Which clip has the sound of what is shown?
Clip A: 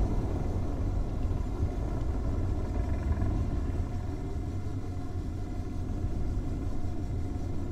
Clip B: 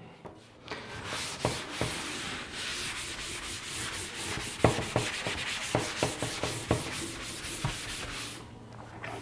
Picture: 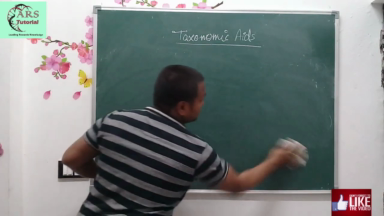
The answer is B